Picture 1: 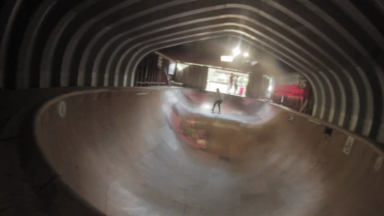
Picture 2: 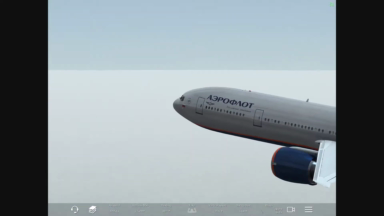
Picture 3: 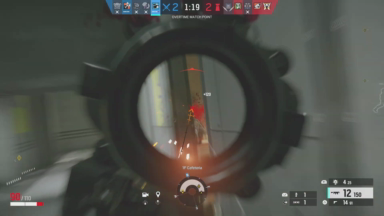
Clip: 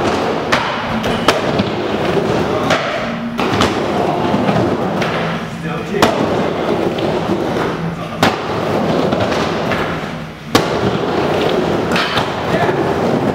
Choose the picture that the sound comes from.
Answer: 1